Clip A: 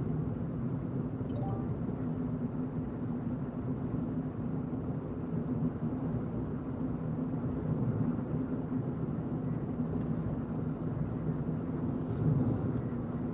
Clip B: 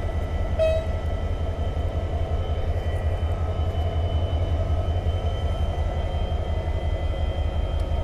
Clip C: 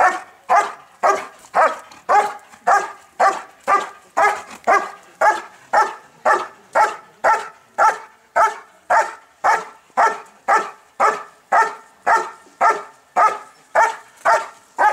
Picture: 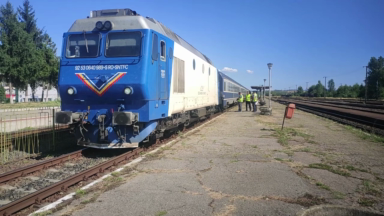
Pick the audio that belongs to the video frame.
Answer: B